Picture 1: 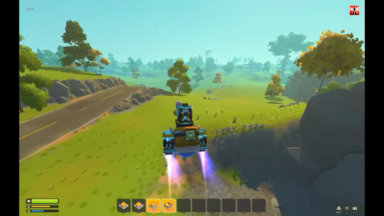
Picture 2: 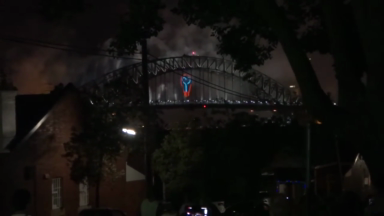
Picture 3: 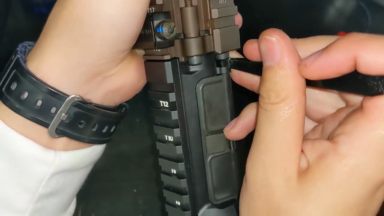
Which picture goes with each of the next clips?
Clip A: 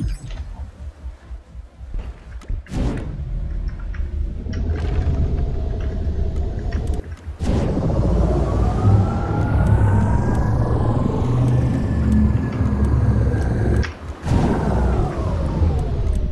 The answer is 1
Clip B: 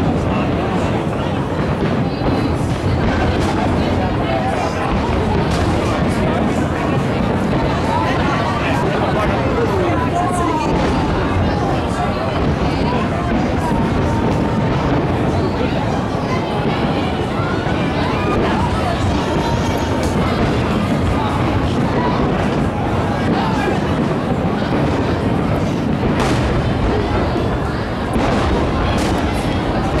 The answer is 2